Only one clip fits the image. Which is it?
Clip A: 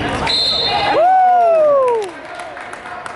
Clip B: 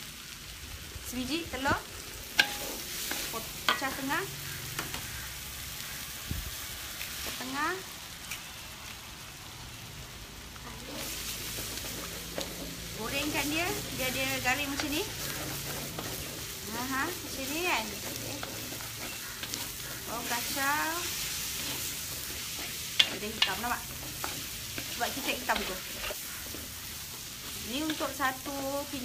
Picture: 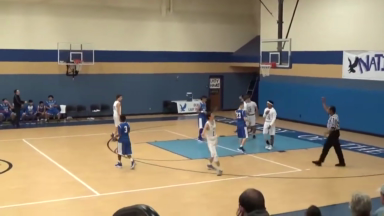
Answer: A